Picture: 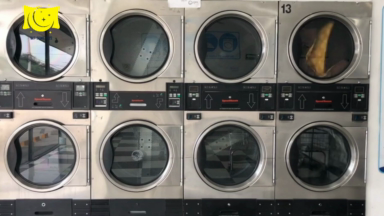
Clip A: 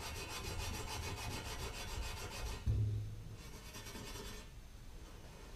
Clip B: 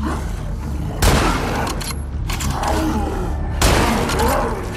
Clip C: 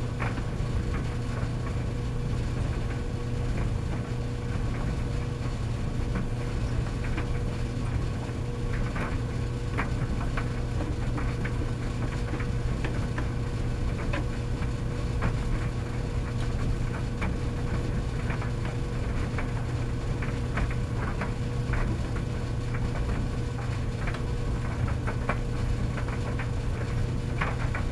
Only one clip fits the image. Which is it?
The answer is C